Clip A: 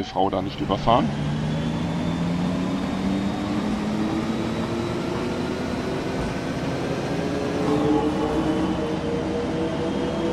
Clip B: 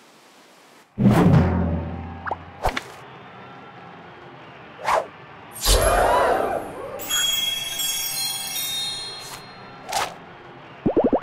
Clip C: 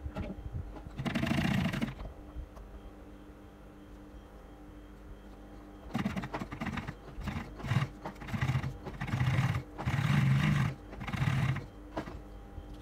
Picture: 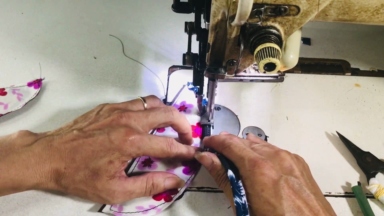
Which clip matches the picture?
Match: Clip C